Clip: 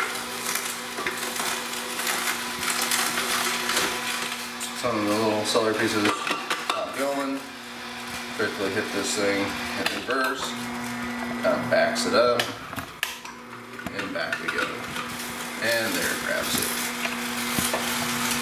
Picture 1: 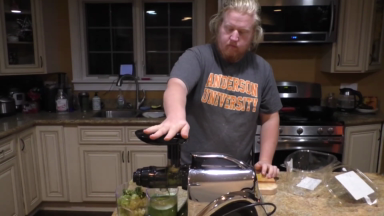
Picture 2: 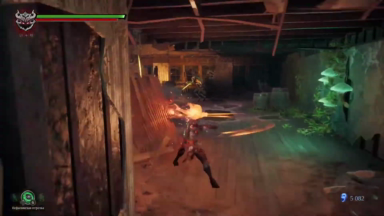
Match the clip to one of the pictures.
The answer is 1